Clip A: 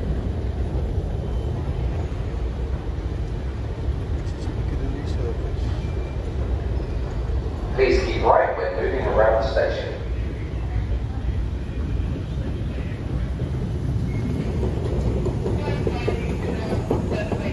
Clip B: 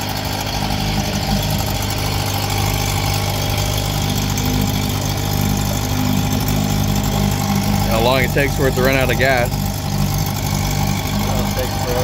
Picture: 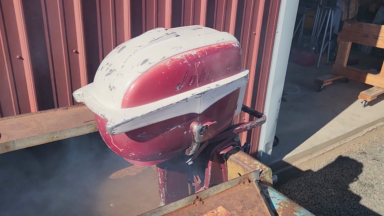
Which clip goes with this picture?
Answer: B